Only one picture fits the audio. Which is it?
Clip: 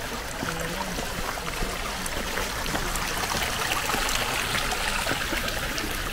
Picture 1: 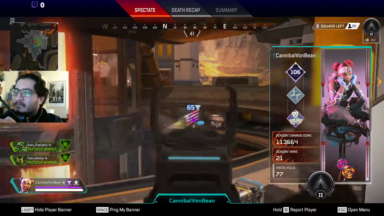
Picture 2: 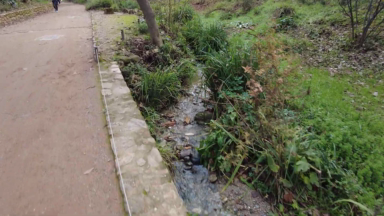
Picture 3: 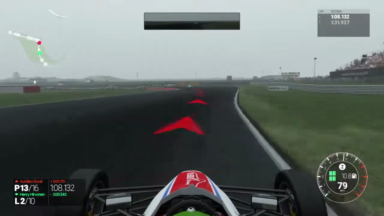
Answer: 2